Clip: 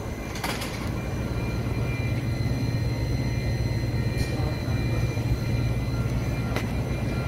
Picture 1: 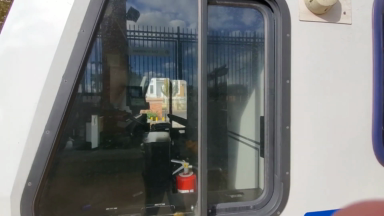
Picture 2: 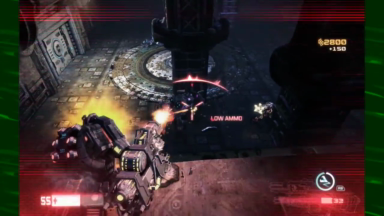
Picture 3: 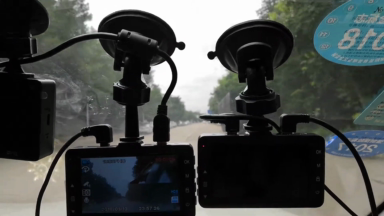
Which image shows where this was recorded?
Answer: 1